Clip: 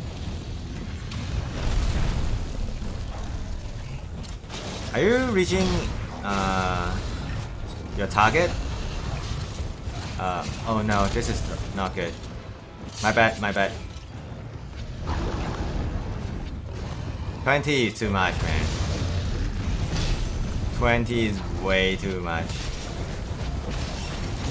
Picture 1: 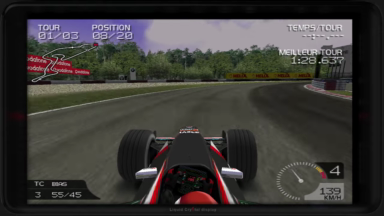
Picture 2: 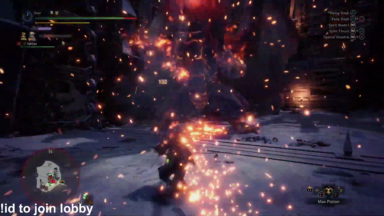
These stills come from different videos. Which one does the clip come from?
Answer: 2